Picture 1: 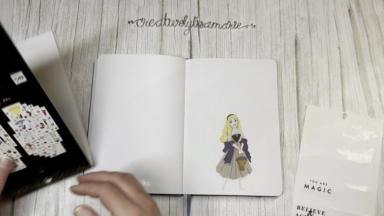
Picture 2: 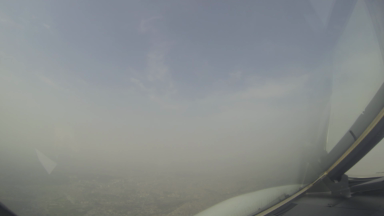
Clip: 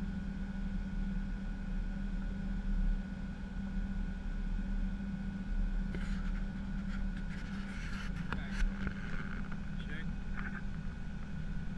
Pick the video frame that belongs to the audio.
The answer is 2